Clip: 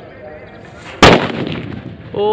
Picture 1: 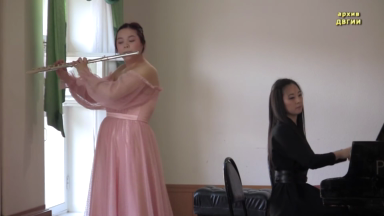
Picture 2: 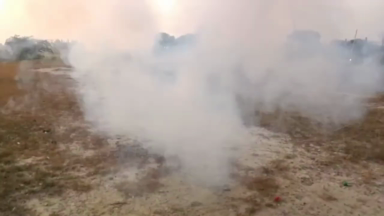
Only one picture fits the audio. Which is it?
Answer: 2